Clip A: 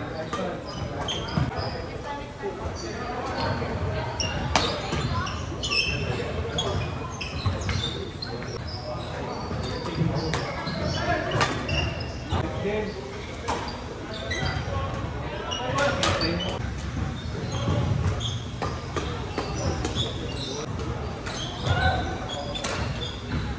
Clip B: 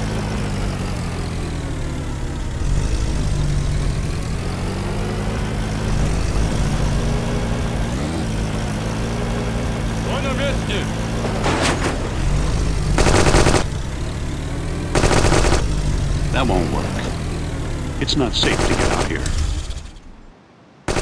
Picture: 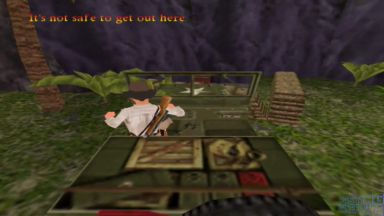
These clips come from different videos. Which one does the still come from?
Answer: B